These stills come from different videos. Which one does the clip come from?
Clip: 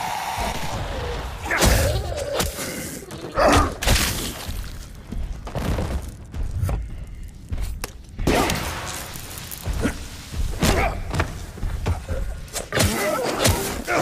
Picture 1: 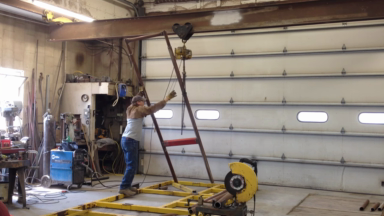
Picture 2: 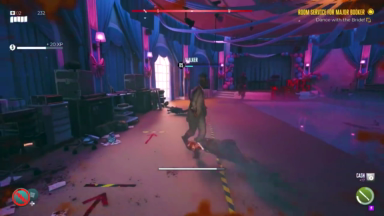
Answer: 2